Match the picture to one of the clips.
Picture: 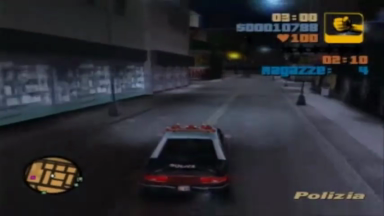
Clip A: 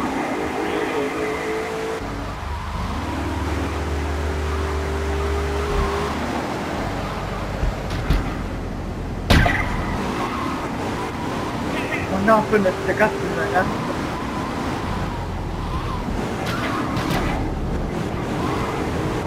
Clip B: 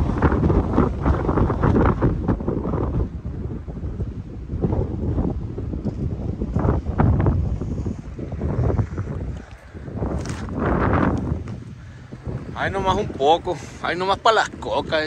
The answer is A